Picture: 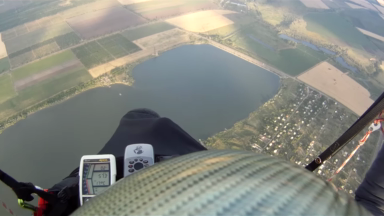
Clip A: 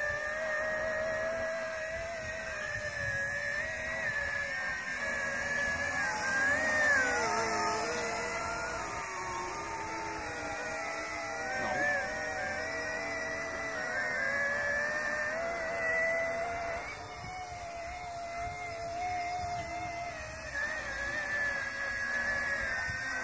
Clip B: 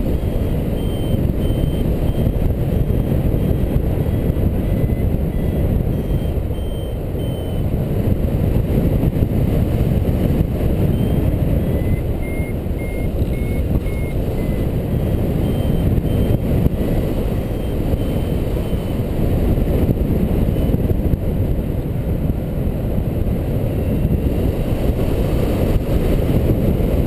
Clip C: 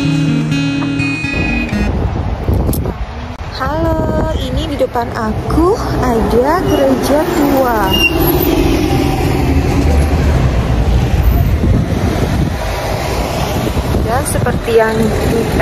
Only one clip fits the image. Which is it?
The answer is B